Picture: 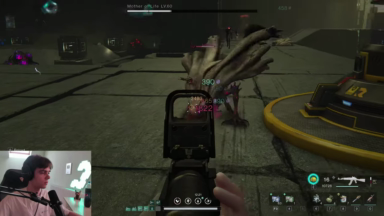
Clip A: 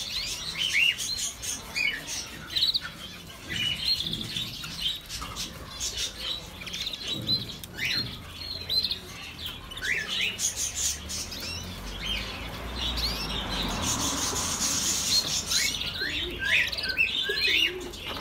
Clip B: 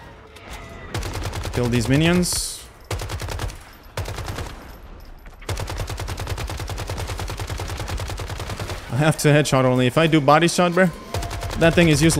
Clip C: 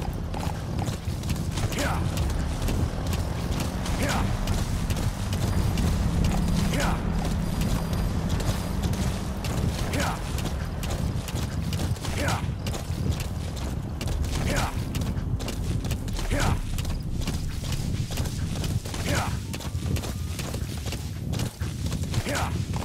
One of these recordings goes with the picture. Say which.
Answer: B